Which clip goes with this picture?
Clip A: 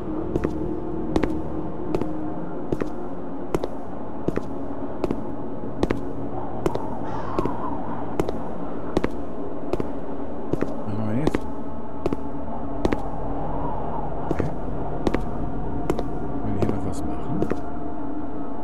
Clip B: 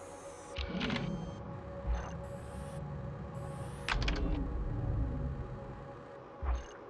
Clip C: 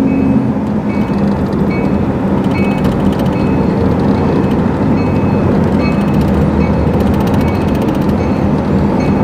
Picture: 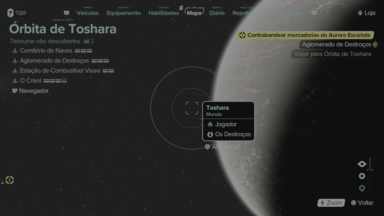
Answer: B